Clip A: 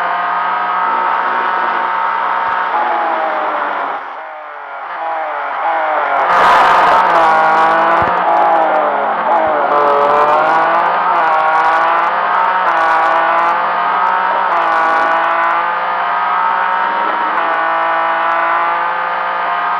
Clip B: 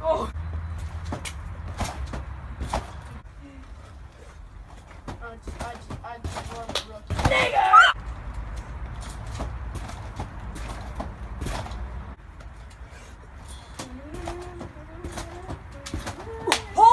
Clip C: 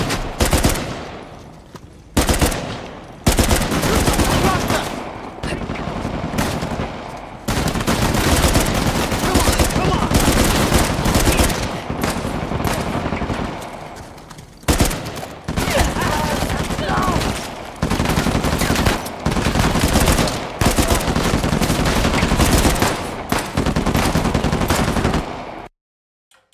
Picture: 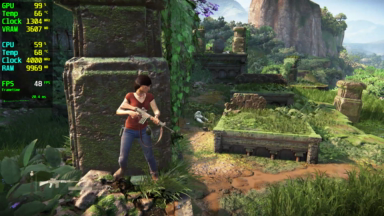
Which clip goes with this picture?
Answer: C